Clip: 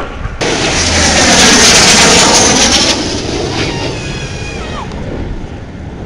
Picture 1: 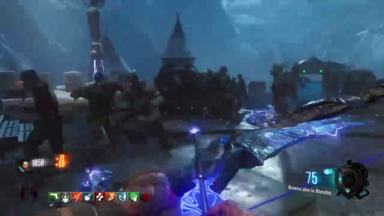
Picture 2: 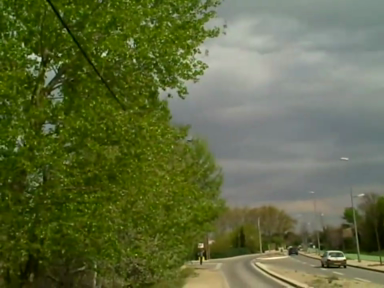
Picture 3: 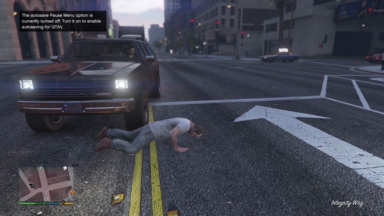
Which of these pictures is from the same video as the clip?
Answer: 2